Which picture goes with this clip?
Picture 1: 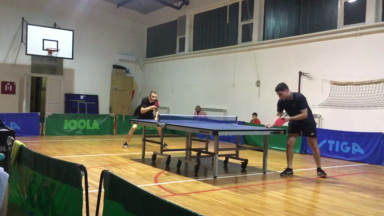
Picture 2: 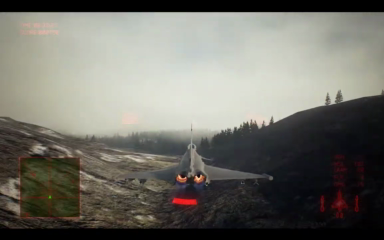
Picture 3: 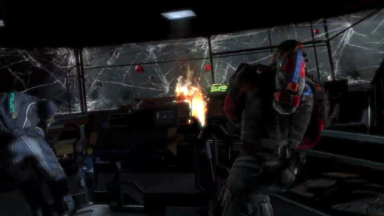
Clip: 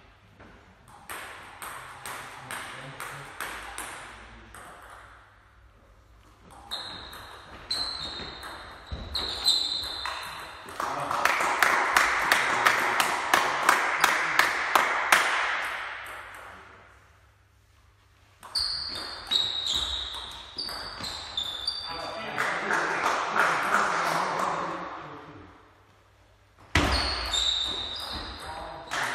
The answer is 1